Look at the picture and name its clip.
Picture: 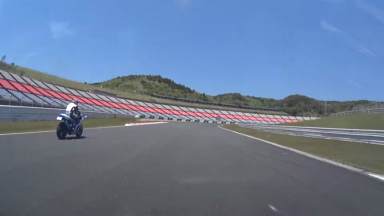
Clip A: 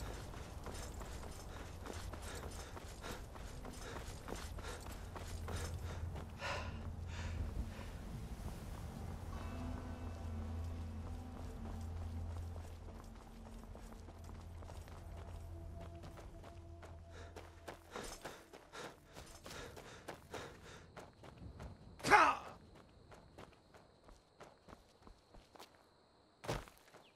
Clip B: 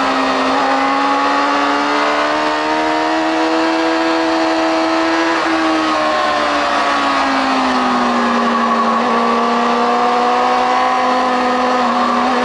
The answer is B